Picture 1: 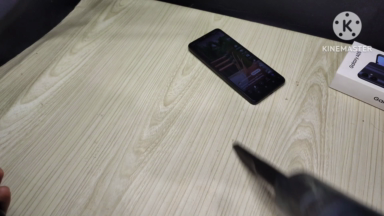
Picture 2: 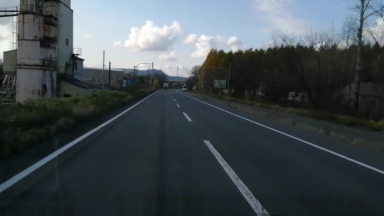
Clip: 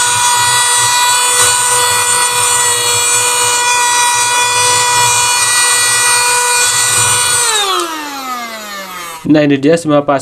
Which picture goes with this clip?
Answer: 1